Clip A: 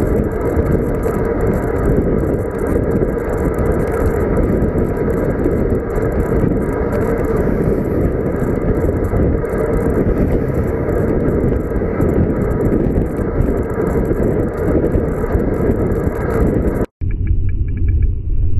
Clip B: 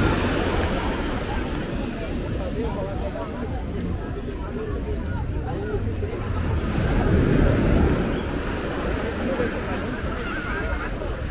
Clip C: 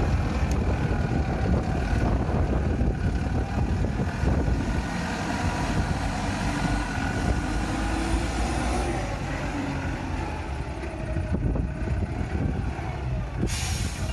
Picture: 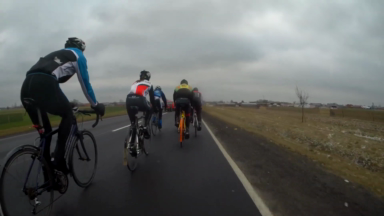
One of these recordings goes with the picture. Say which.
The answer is A